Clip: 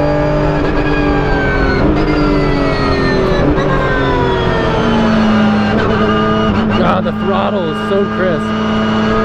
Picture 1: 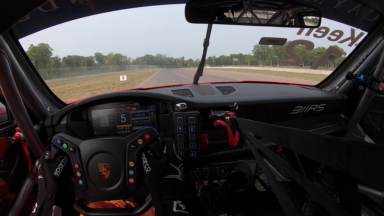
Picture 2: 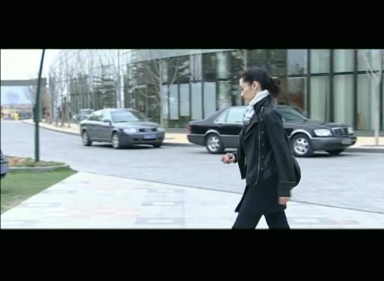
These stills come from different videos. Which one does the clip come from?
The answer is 1